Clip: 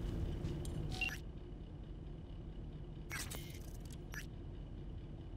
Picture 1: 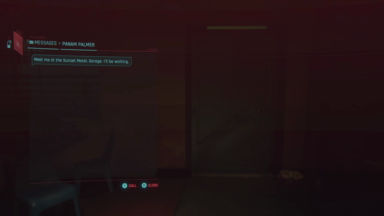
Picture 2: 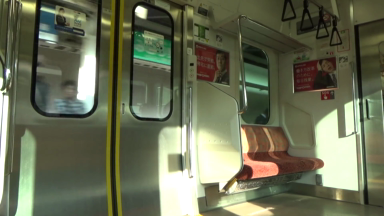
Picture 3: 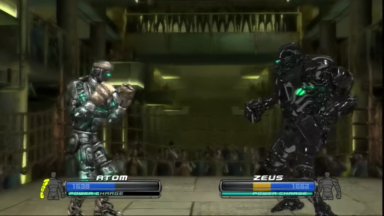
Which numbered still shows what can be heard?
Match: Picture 1